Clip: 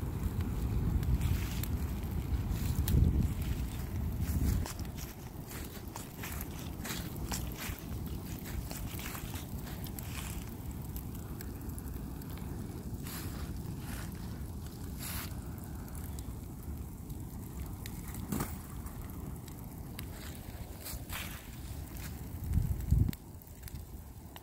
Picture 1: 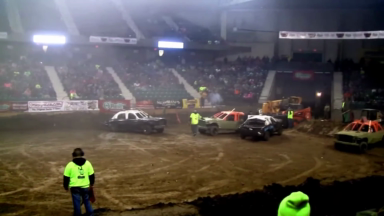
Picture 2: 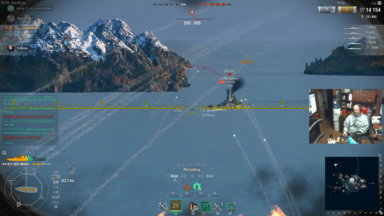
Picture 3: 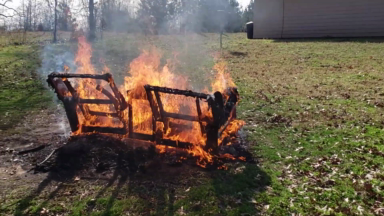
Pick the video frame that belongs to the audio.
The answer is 3